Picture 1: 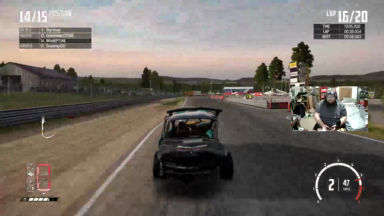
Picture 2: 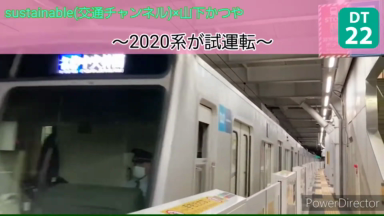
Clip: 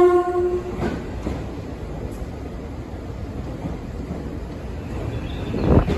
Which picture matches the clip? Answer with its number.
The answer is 2